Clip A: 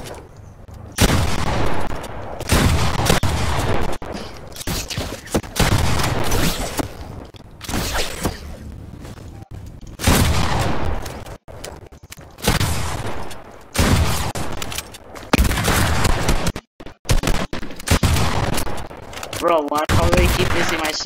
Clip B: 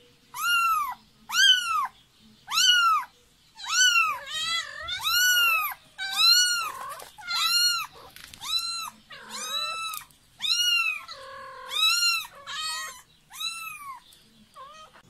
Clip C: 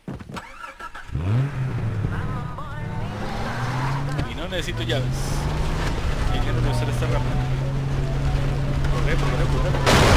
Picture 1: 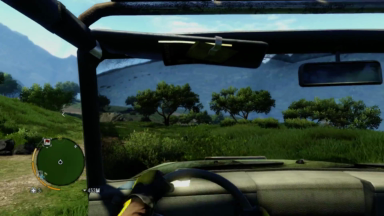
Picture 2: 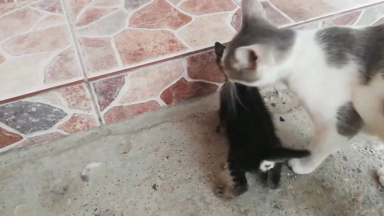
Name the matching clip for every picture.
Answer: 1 C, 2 B